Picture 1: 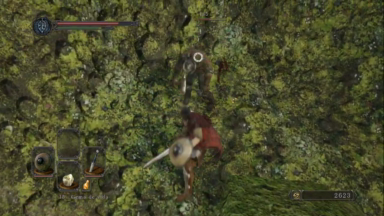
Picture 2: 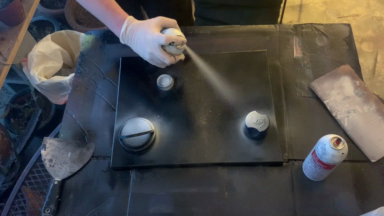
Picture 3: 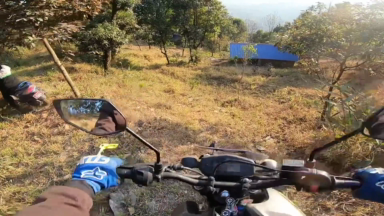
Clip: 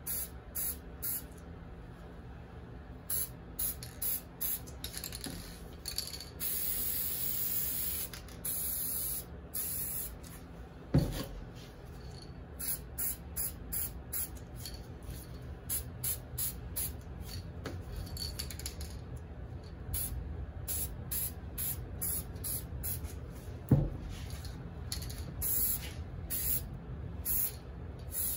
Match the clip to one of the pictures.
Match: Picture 2